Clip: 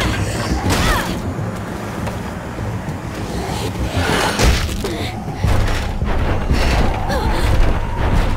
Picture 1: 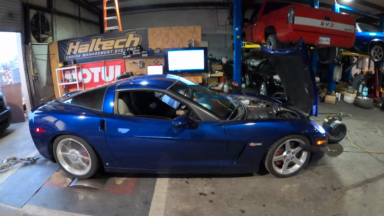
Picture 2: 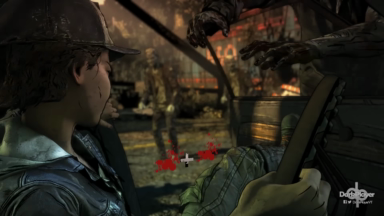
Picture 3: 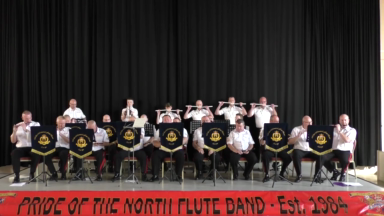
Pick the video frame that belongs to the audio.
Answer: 2